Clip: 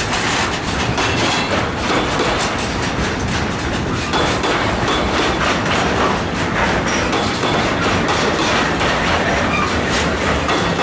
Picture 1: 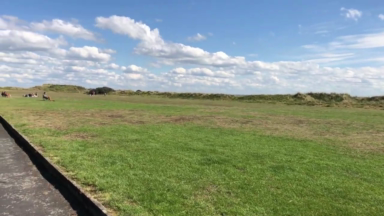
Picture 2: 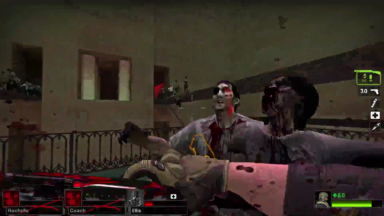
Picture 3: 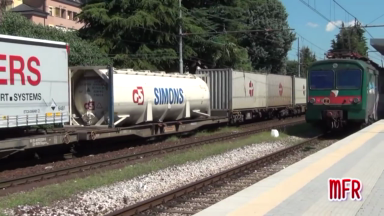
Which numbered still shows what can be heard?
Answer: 3